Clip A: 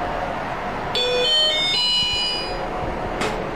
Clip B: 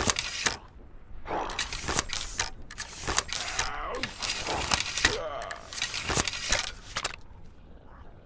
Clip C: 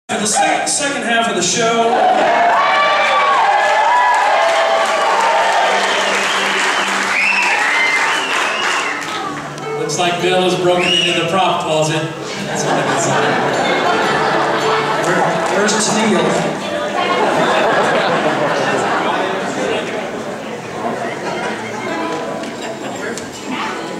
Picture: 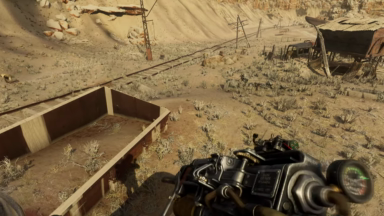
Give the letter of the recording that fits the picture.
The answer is B